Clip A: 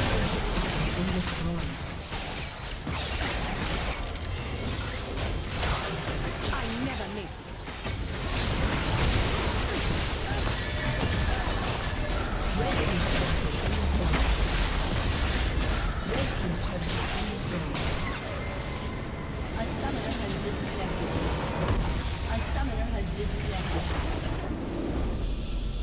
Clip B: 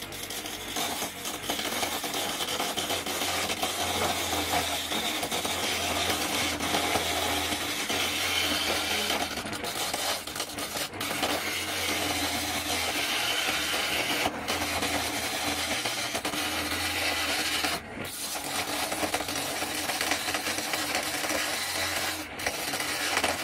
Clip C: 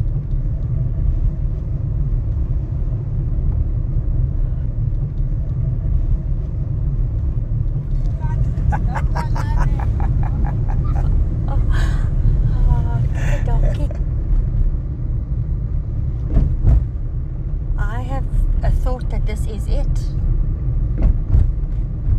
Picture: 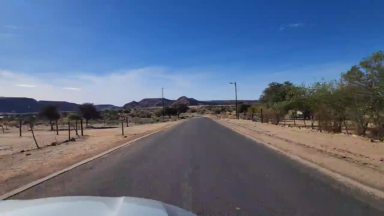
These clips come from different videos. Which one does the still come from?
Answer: C